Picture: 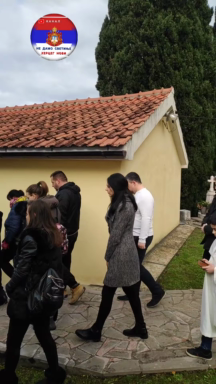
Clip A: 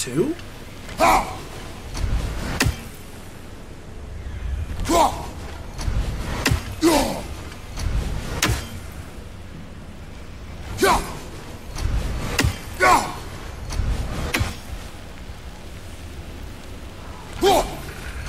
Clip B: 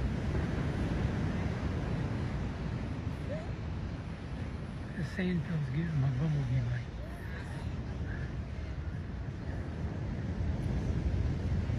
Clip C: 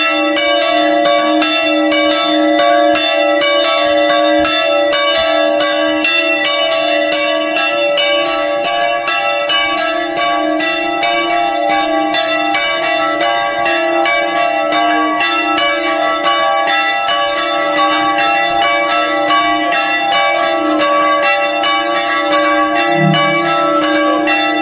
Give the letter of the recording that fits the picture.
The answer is C